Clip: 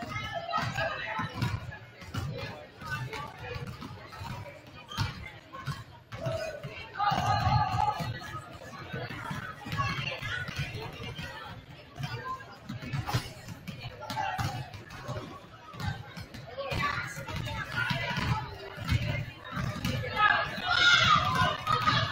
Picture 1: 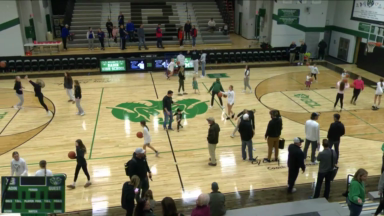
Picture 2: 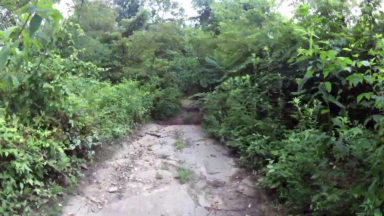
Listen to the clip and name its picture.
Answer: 1